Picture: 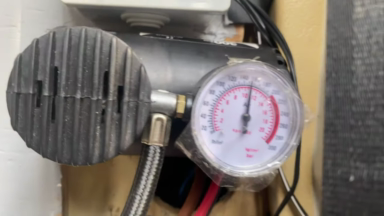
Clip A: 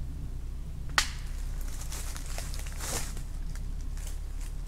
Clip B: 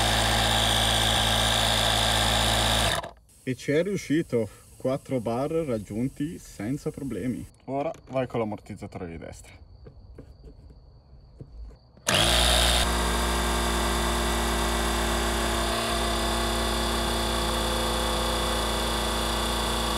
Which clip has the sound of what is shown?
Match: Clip B